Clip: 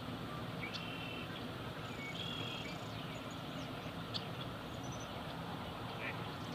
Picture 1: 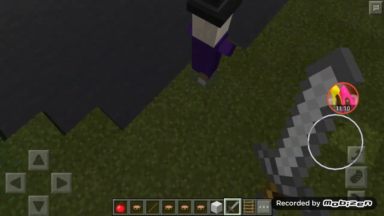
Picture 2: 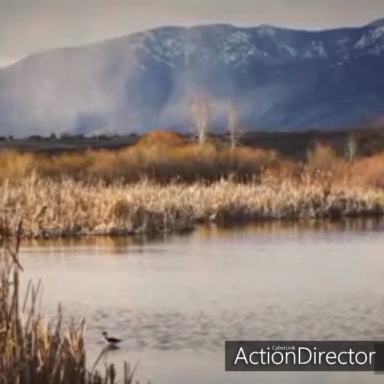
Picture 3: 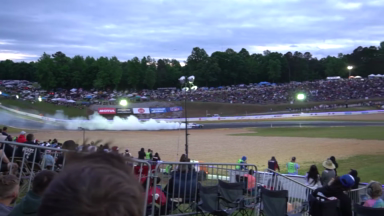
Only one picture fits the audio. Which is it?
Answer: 2